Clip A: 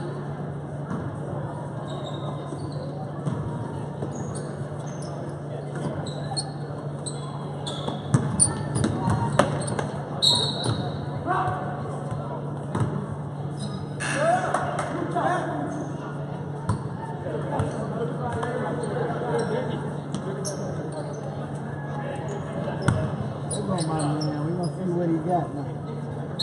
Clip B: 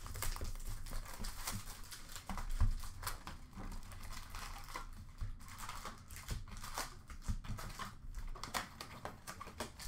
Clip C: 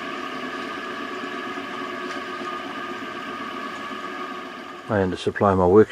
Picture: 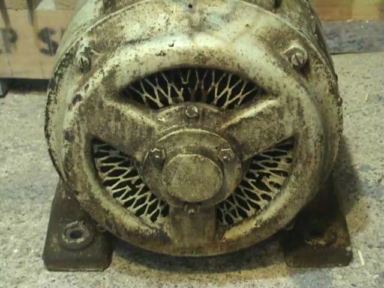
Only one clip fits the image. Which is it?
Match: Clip C